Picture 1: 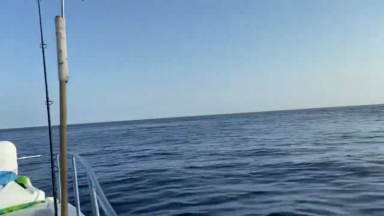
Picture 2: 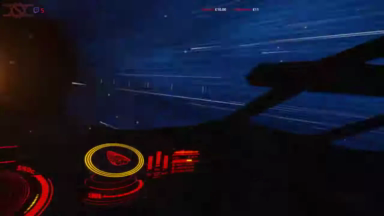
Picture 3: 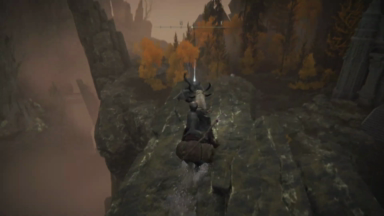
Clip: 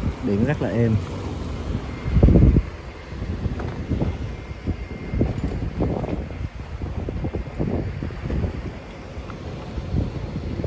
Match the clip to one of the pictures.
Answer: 1